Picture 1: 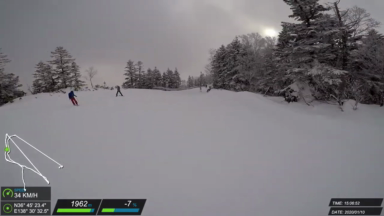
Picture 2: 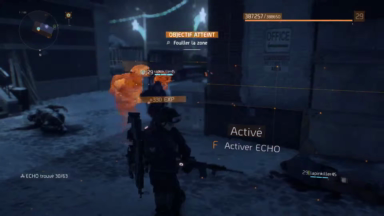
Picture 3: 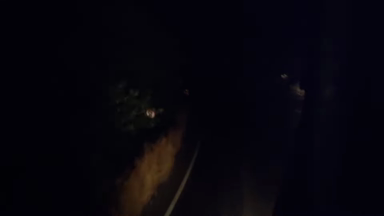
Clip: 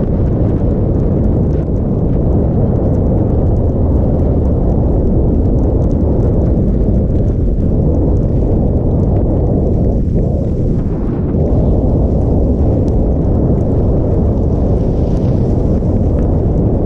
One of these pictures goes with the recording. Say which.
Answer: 1